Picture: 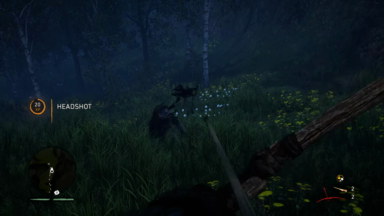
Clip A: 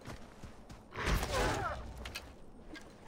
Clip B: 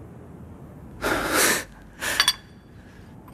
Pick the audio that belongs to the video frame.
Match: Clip A